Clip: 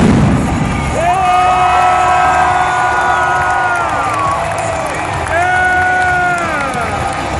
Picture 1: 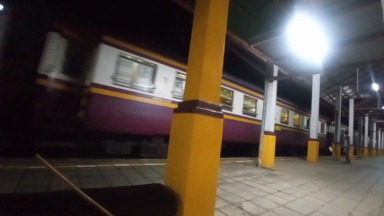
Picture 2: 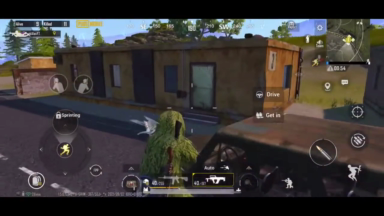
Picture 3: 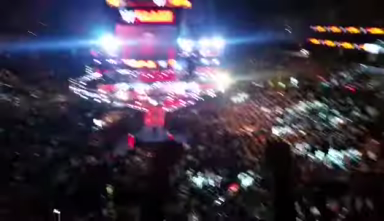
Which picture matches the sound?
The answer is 3